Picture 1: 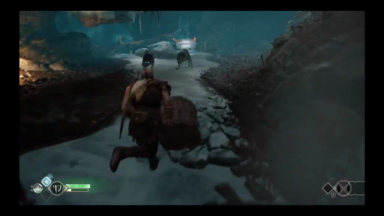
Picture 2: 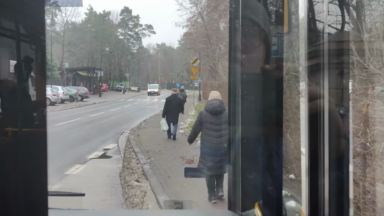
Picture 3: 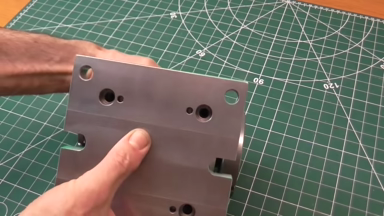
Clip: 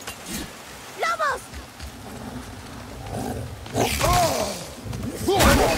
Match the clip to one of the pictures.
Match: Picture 1